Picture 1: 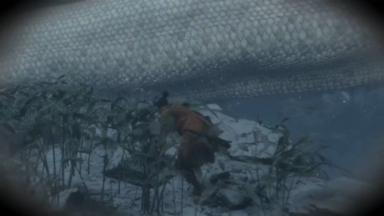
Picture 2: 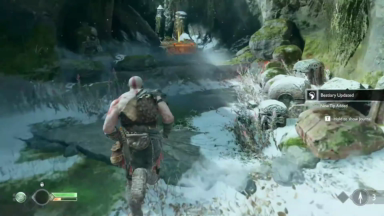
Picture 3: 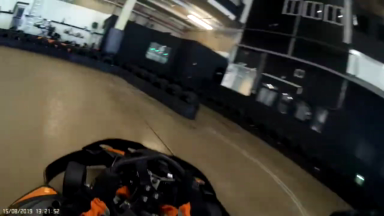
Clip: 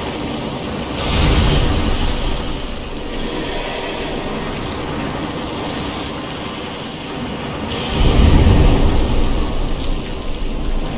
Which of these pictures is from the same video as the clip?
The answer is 1